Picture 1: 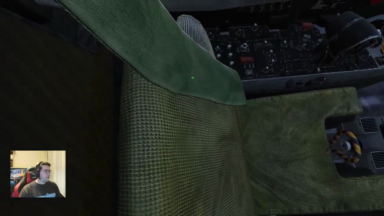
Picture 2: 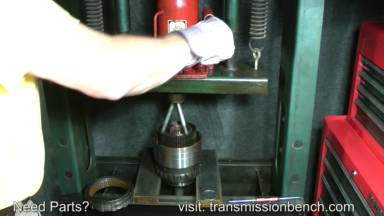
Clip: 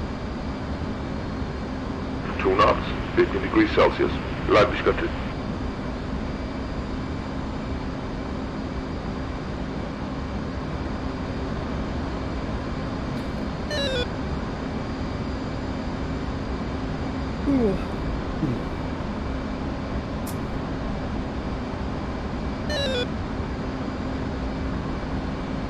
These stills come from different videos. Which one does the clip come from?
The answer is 1